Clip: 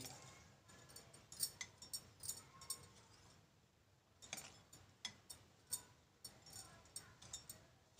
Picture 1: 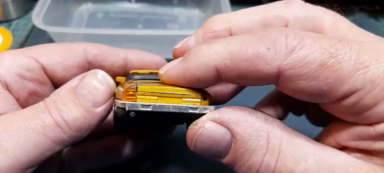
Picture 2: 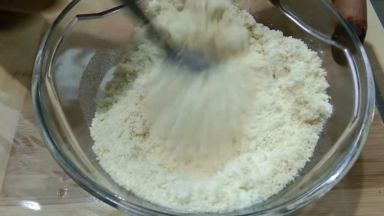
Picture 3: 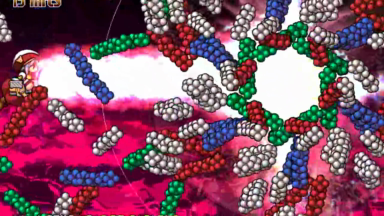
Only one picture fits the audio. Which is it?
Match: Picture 2